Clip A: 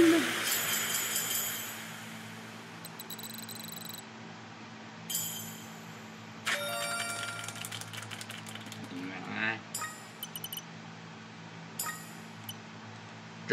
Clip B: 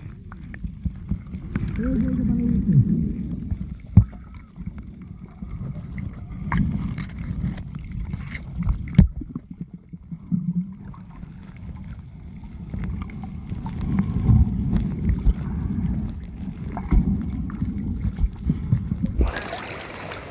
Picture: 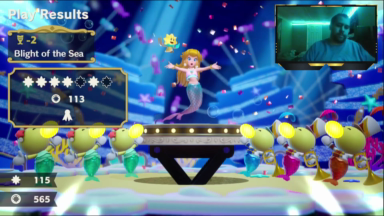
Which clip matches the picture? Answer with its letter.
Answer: A